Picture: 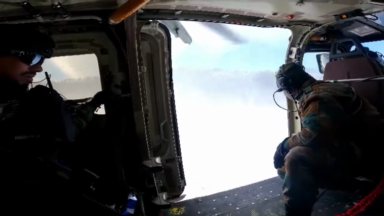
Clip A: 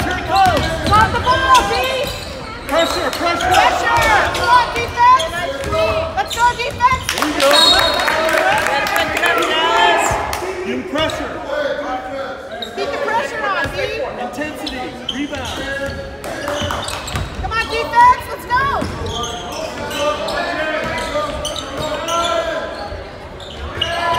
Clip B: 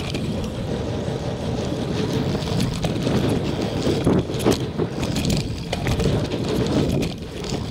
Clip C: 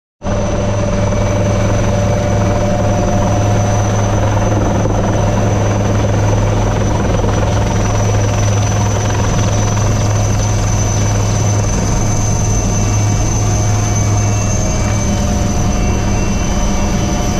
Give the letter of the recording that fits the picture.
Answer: C